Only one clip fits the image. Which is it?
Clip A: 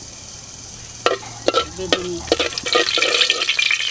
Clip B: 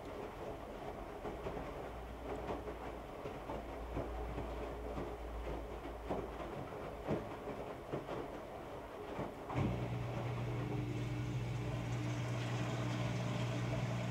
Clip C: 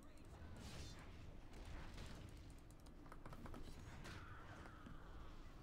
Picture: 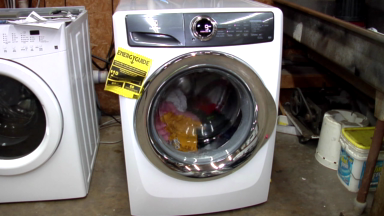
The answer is B